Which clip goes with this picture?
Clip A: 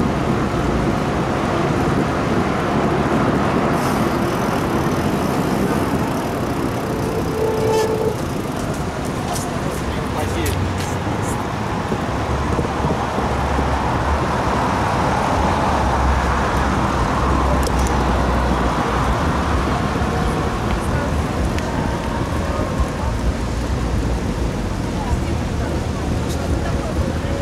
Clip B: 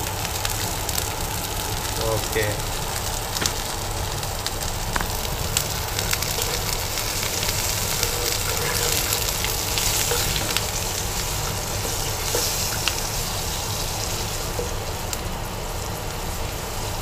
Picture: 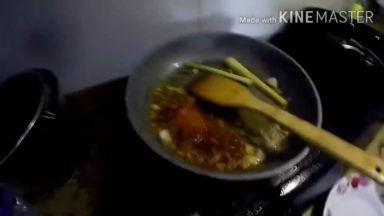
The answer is B